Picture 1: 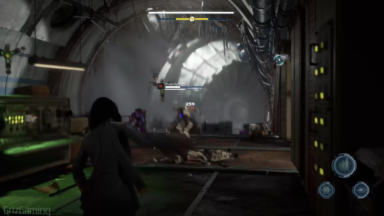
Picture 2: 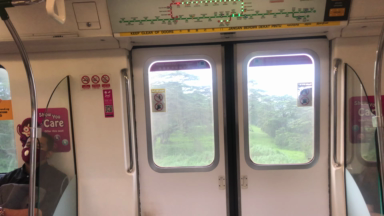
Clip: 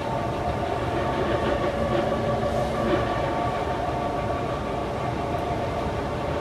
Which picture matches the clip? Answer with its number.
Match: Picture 2